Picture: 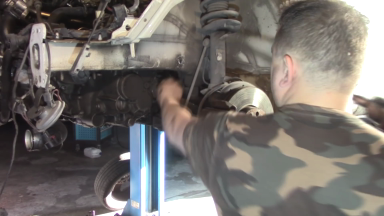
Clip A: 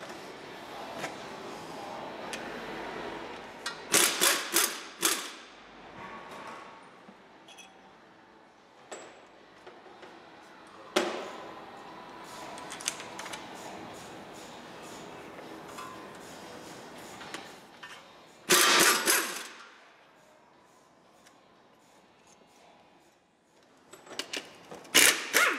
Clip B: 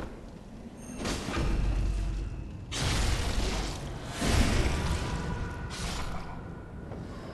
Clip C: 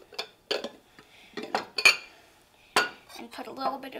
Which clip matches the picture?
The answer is A